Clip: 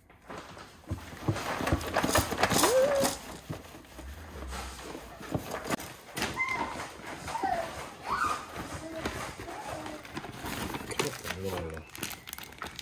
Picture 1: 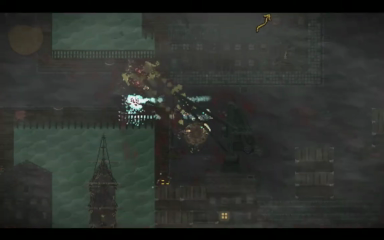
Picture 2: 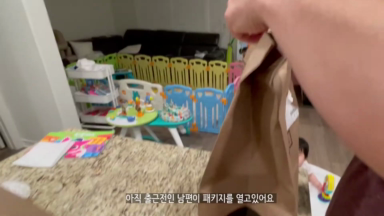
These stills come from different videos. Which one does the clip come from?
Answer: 2